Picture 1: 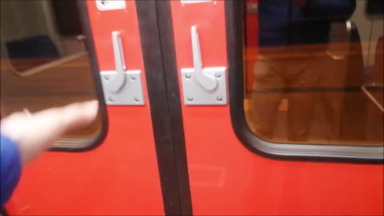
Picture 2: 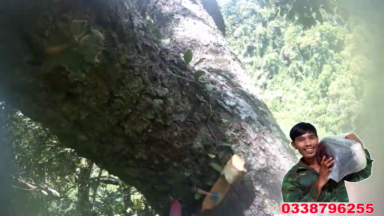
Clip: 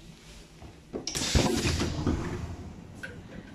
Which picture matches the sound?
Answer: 1